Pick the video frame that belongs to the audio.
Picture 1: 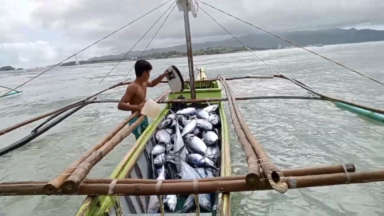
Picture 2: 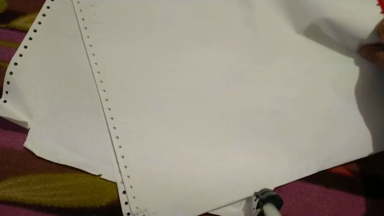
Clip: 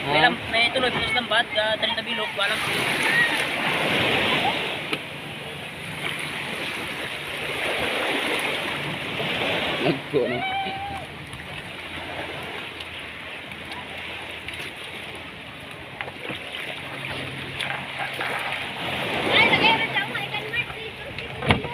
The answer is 1